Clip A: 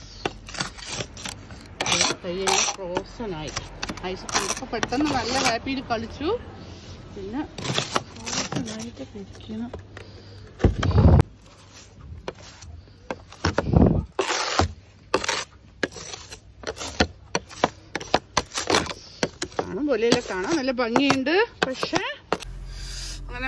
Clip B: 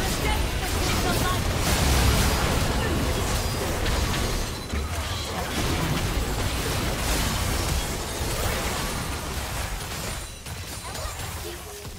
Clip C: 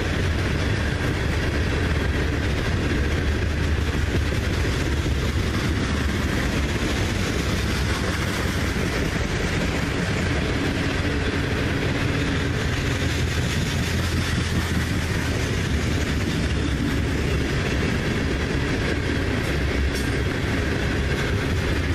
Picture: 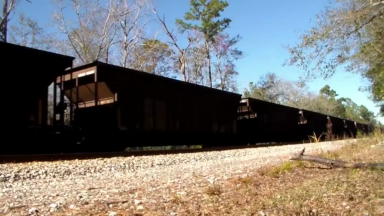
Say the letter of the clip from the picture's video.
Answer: C